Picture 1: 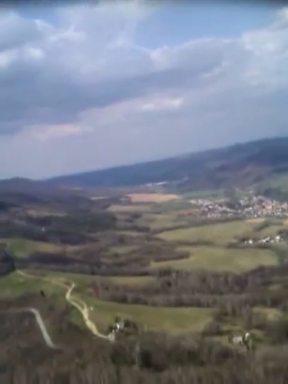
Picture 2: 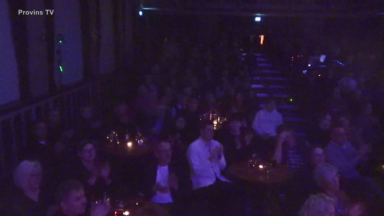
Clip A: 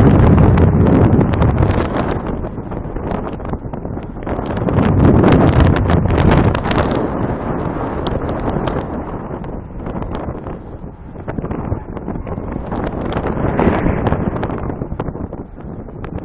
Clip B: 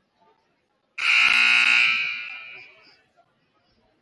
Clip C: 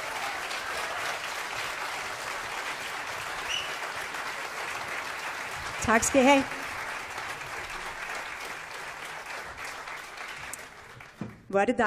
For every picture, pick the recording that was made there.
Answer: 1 A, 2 C